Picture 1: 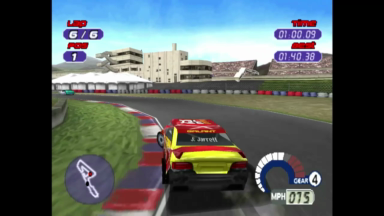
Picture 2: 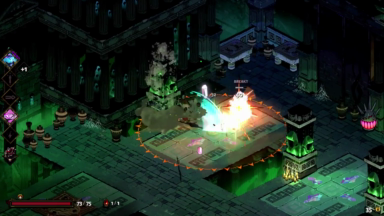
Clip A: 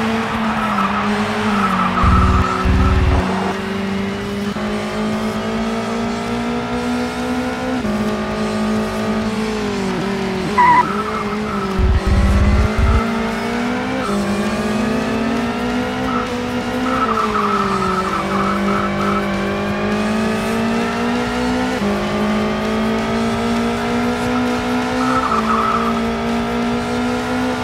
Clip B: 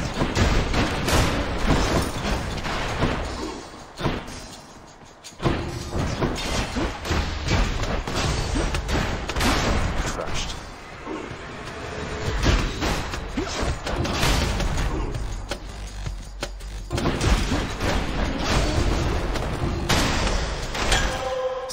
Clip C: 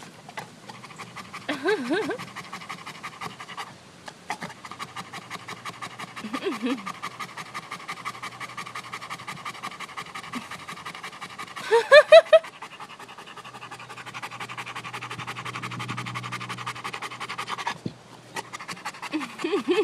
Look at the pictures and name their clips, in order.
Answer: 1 A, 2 B